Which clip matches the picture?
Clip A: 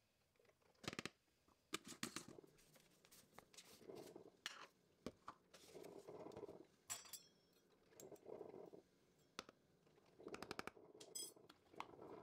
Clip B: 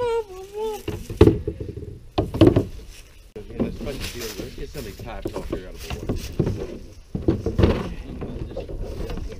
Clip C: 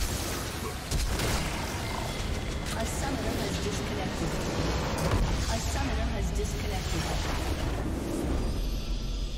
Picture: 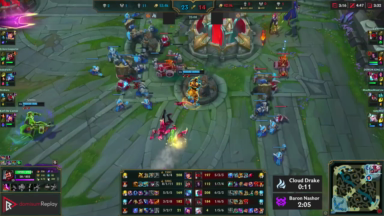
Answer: C